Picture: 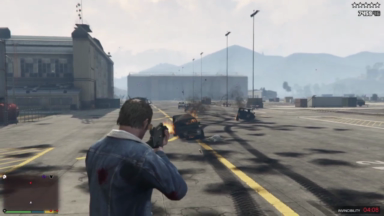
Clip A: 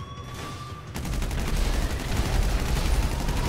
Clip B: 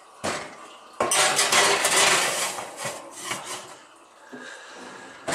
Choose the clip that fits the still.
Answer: A